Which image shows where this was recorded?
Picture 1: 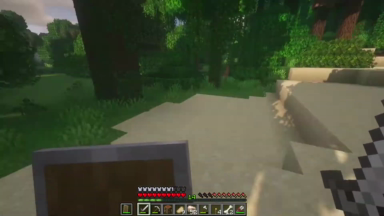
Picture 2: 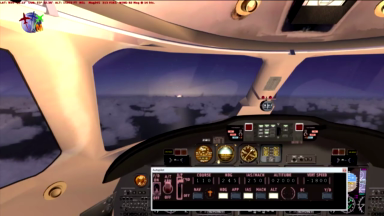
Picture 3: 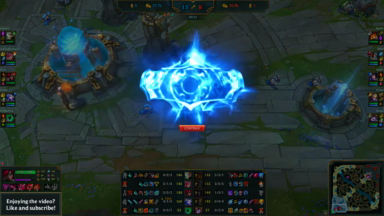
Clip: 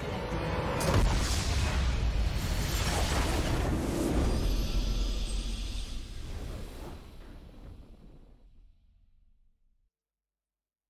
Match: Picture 3